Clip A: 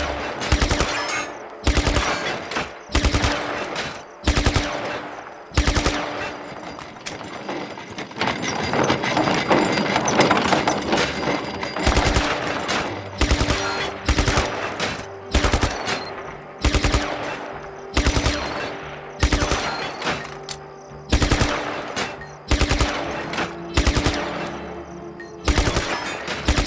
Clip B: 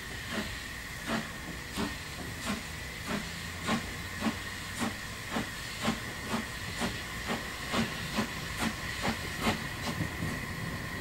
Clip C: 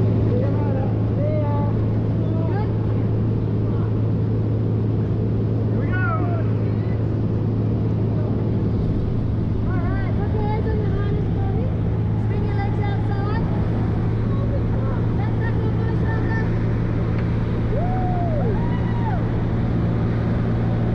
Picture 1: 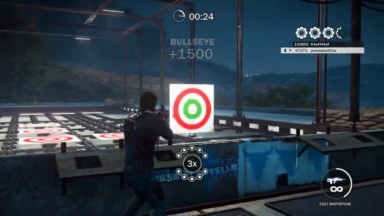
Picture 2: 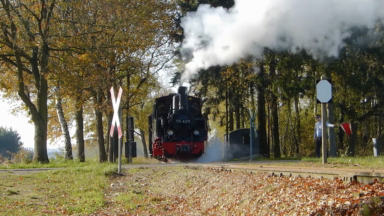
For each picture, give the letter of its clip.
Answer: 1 A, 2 B